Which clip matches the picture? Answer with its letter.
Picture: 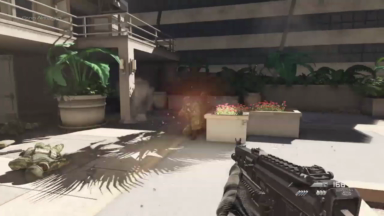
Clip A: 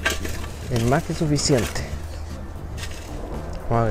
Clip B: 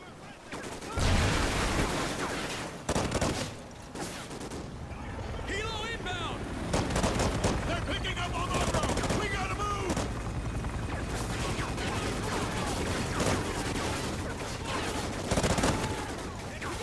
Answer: B